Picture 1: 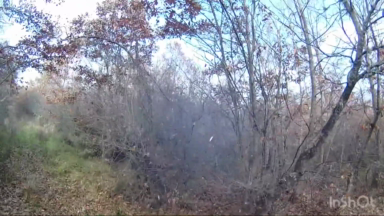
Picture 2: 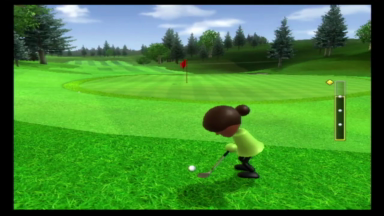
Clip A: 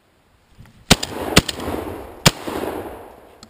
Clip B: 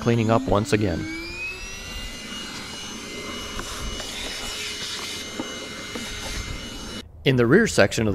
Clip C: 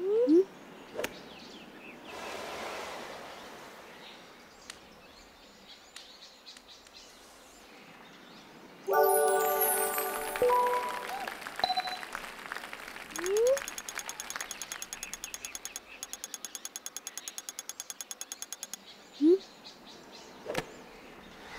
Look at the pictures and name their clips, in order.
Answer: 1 A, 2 C